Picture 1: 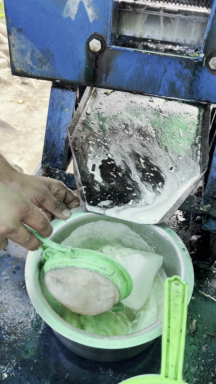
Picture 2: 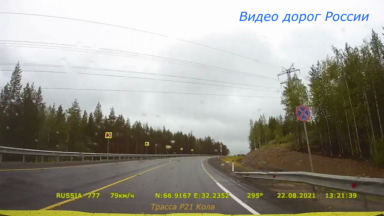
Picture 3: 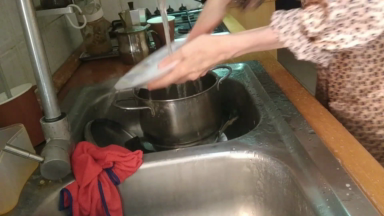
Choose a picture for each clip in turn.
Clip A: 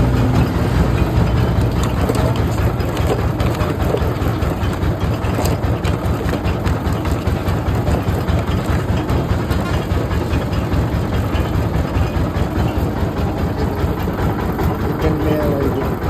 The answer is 1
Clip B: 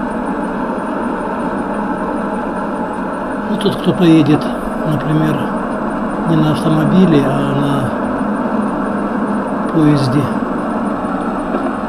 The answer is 2